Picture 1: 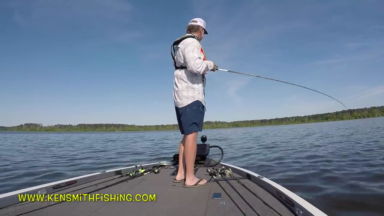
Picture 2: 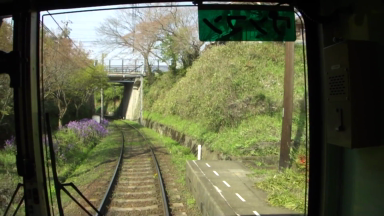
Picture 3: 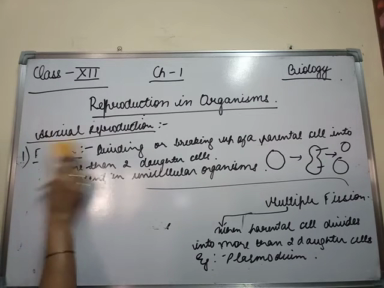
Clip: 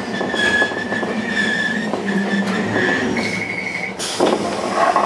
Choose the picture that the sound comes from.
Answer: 2